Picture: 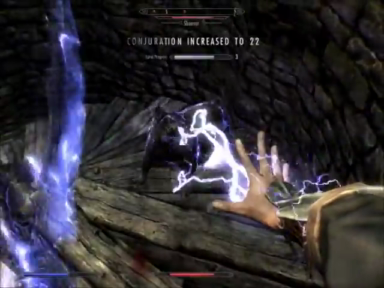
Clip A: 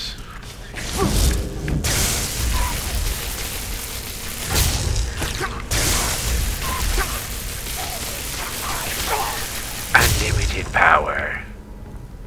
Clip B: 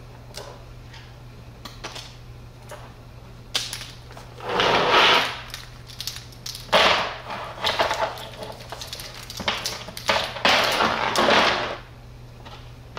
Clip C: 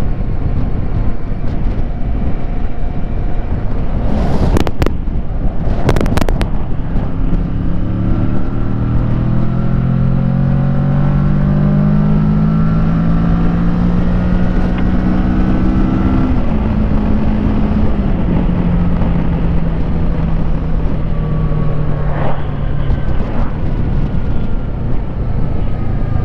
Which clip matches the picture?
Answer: A